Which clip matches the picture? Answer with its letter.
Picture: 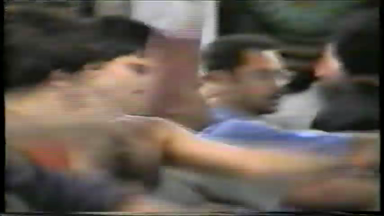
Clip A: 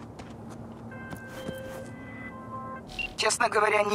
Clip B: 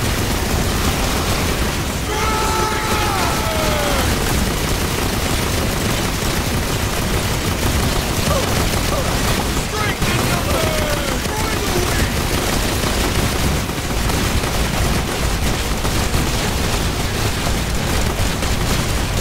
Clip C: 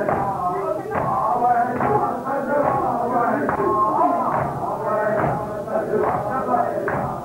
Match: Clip C